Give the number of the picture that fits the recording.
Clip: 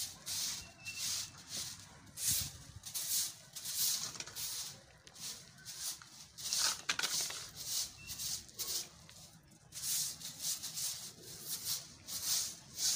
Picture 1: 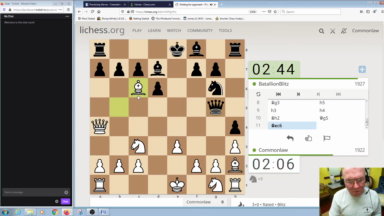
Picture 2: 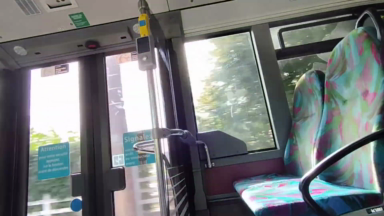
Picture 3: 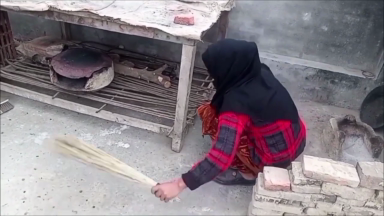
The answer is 3